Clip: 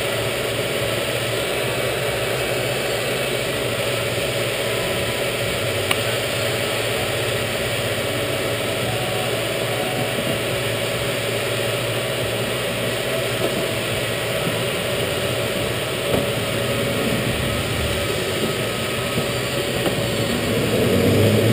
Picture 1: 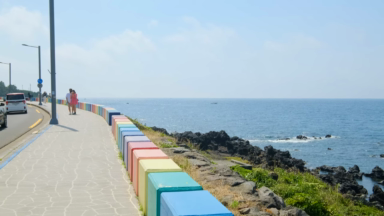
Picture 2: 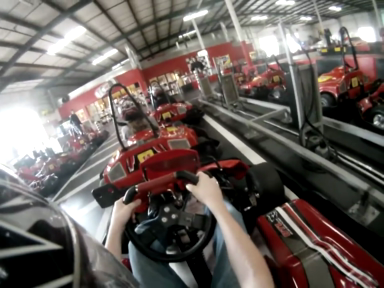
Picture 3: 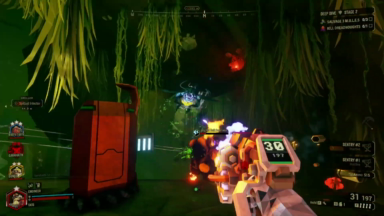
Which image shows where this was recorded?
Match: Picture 2